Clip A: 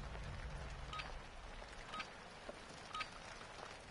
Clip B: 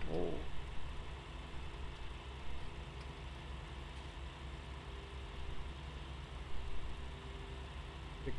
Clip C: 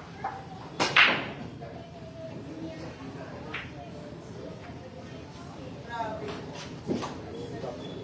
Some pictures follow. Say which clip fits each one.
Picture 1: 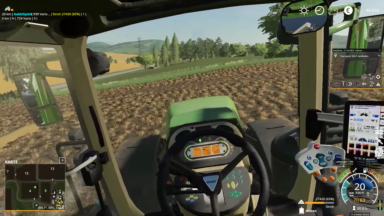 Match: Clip B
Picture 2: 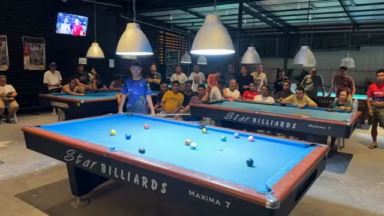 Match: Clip C